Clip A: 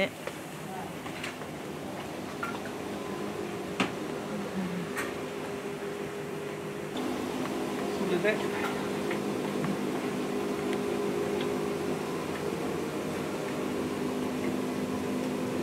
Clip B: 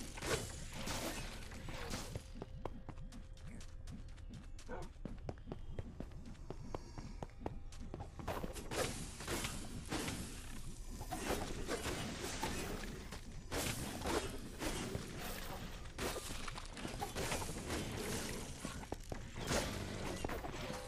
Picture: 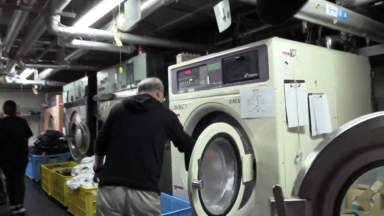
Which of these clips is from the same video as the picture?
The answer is A